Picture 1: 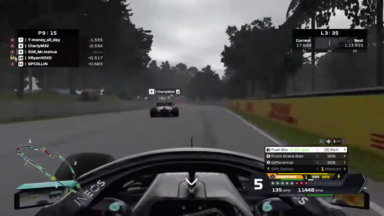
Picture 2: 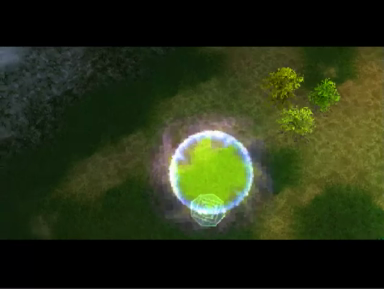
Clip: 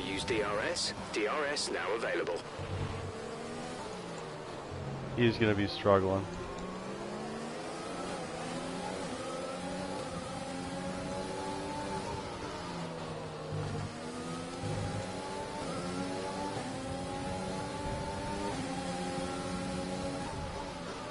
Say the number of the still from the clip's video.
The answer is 1